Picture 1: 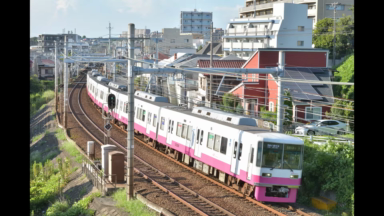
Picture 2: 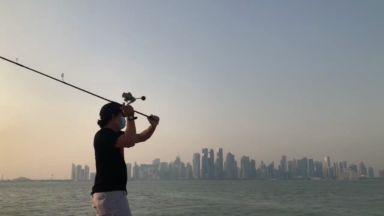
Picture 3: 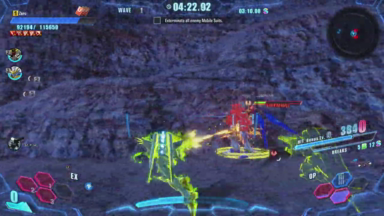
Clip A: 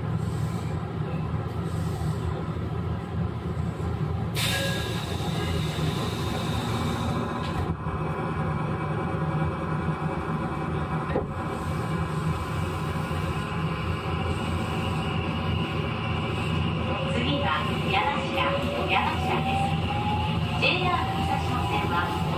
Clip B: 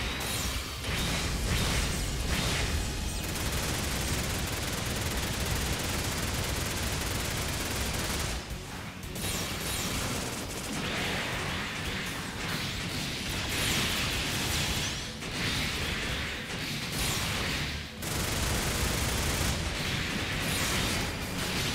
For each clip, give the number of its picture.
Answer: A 1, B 3